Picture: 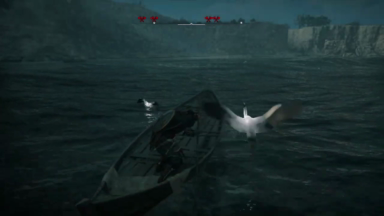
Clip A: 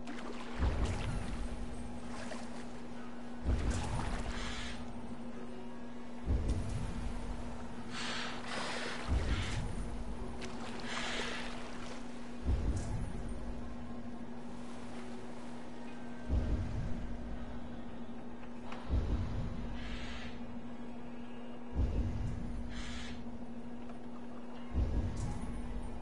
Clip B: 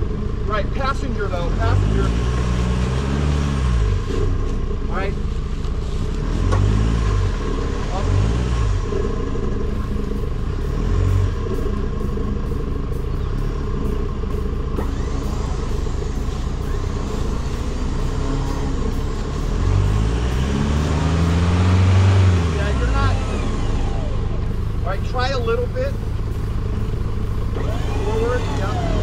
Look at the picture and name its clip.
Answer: A